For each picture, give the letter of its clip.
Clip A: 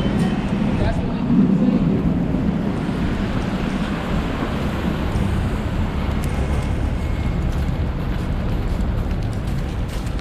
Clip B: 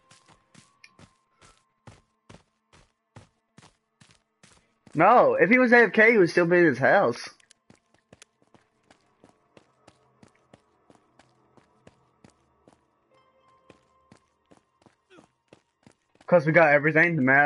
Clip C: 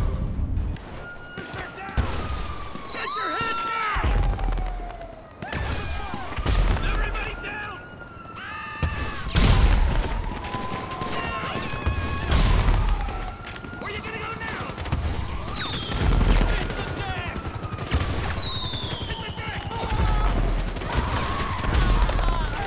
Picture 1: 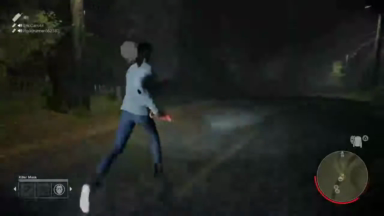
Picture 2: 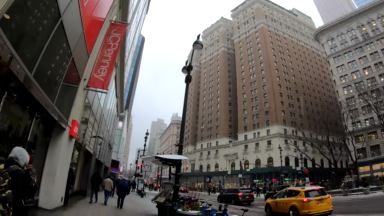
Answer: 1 B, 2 A